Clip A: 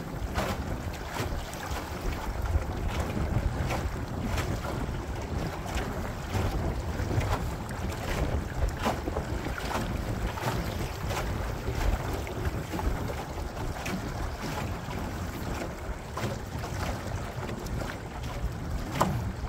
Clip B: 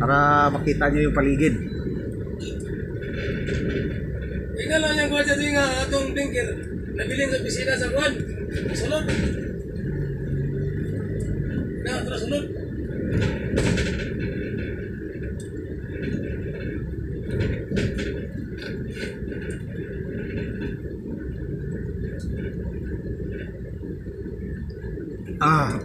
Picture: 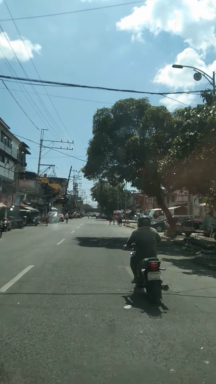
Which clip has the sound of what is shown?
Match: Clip B